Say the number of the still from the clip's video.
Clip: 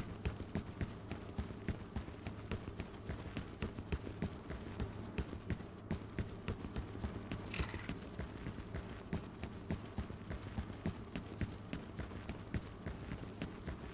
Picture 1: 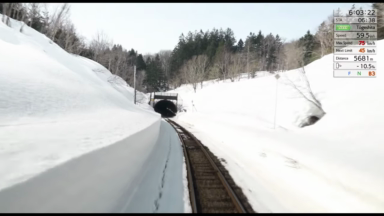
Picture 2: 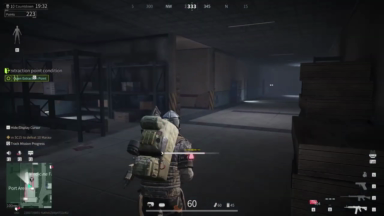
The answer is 2